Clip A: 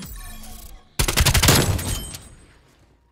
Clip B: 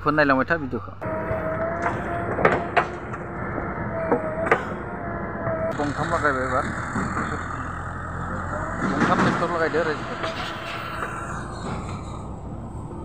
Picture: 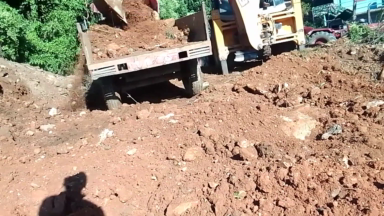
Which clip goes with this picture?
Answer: B